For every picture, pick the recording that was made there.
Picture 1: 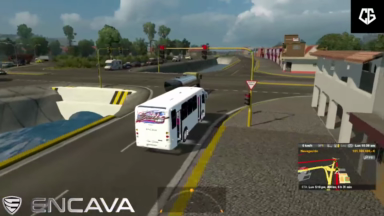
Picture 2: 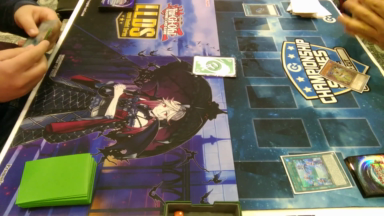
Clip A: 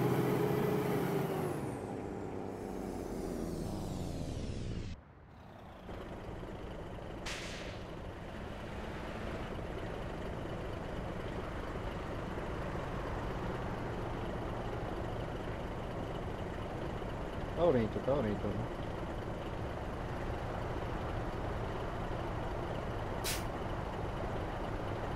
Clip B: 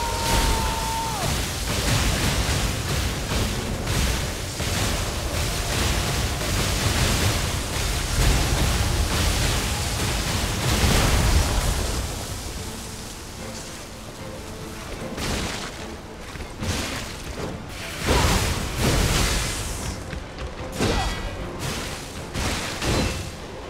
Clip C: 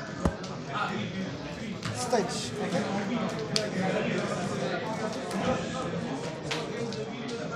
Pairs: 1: A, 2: C